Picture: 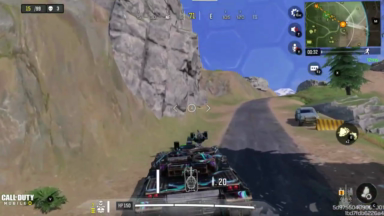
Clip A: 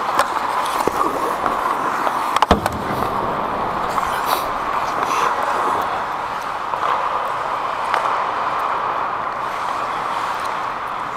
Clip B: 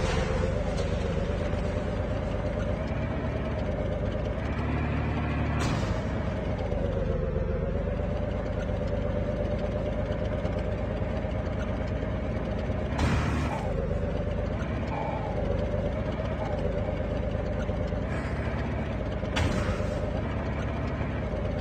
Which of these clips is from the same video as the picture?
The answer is B